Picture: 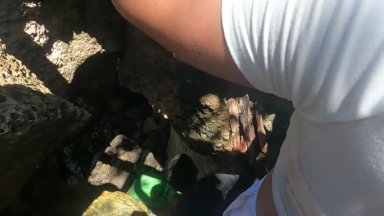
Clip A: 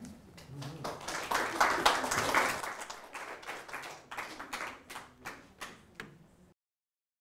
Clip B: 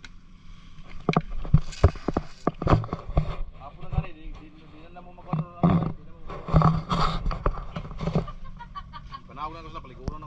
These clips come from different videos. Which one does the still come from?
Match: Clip B